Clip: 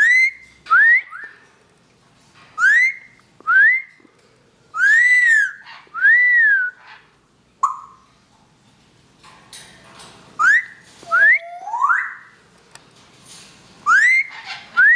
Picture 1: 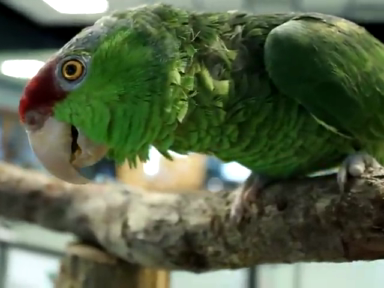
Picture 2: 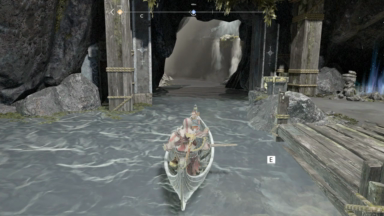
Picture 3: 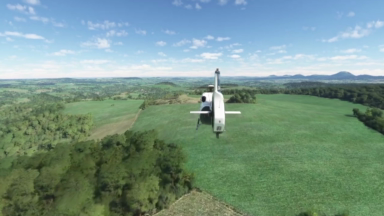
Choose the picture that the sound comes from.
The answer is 1